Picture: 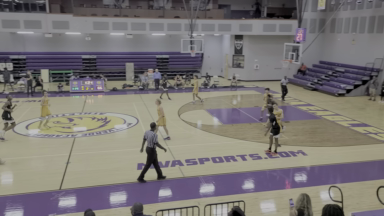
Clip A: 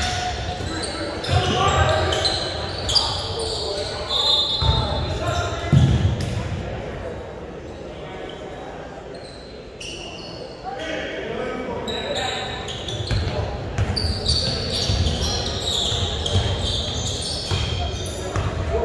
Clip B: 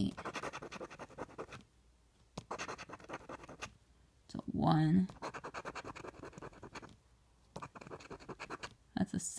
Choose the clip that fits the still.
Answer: A